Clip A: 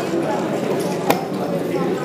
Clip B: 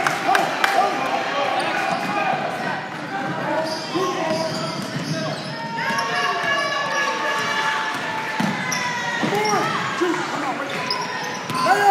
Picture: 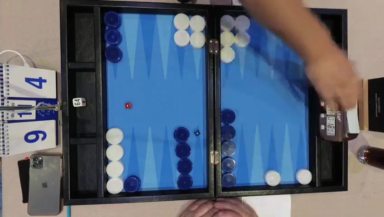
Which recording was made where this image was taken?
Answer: A